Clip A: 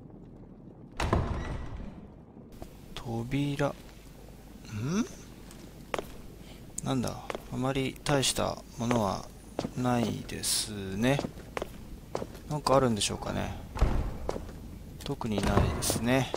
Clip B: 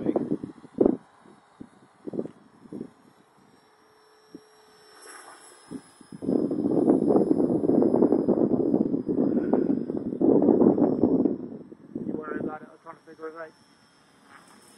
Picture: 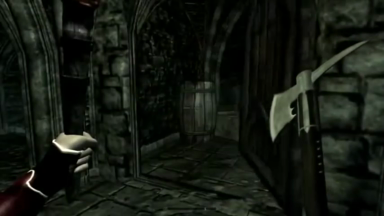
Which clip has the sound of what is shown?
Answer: A